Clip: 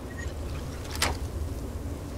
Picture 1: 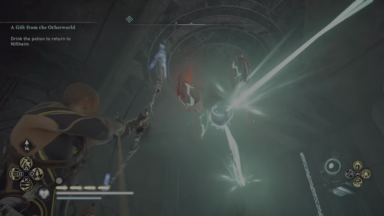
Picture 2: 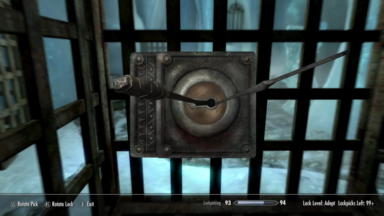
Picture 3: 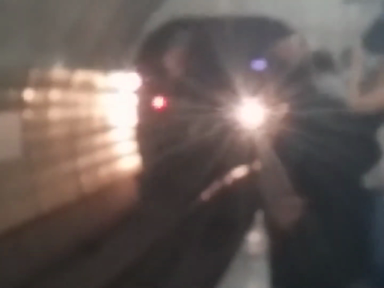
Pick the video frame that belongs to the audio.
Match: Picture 2